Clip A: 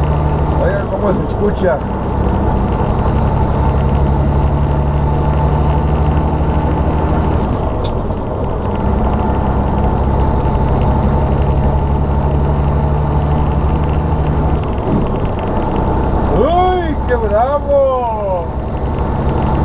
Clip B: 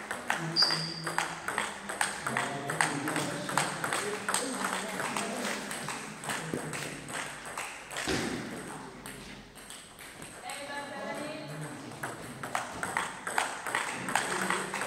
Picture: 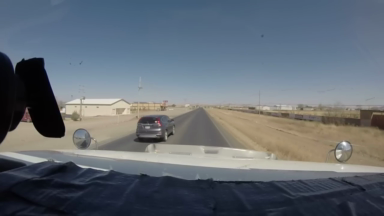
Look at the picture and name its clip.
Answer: A